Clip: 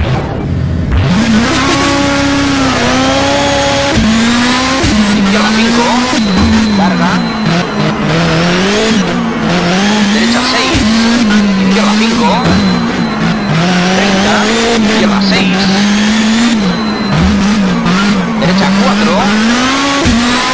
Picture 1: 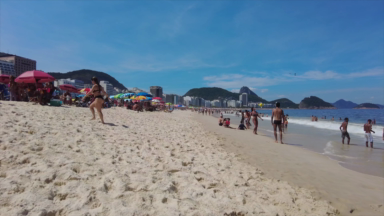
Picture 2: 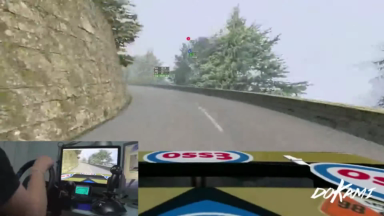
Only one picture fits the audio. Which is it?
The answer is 2